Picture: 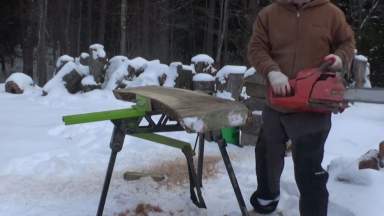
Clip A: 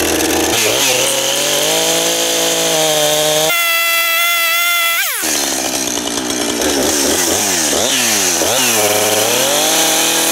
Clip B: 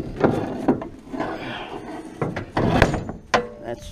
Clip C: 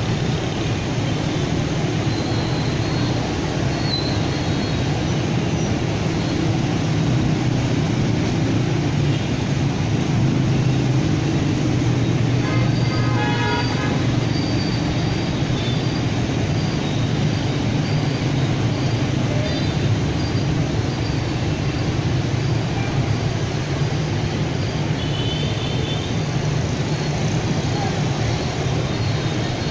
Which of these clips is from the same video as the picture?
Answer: A